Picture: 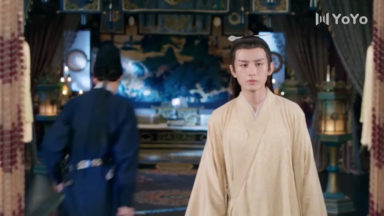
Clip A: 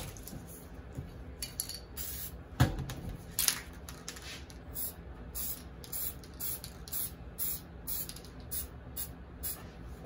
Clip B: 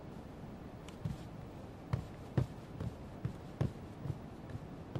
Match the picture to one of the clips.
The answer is B